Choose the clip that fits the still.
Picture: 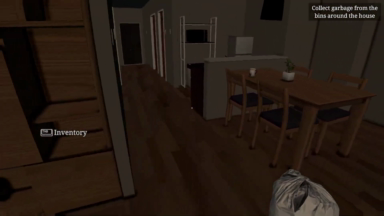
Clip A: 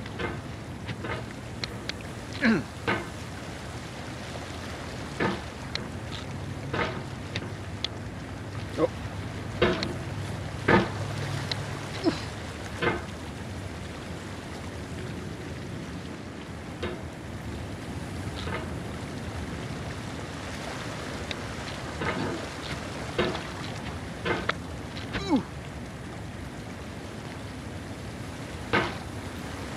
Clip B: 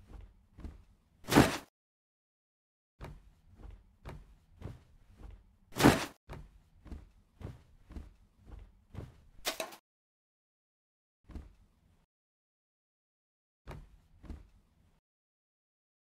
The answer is B